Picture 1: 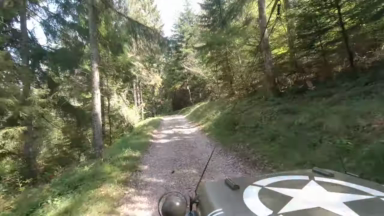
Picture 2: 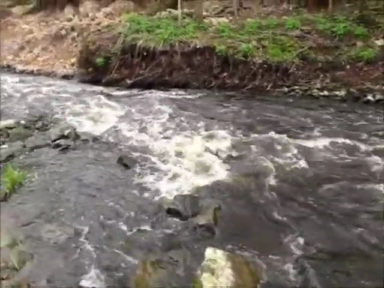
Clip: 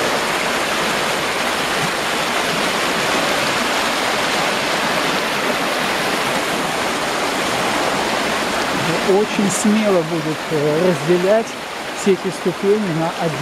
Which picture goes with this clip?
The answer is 2